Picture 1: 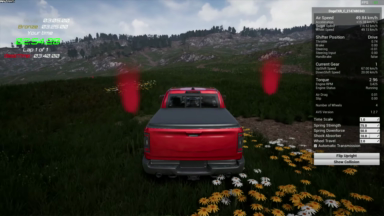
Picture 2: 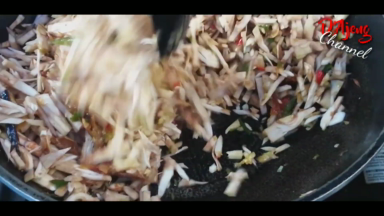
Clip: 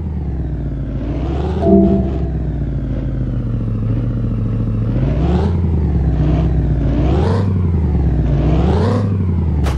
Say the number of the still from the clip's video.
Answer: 1